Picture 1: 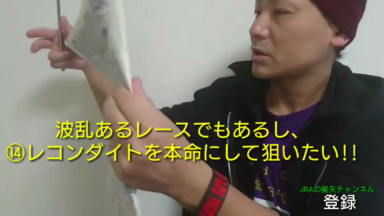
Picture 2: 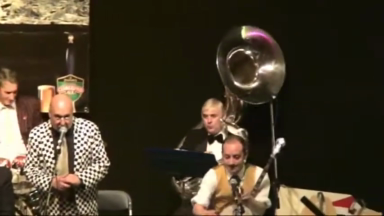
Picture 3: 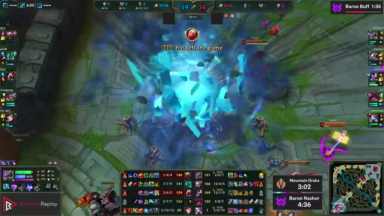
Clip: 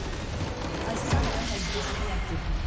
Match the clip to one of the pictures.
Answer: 3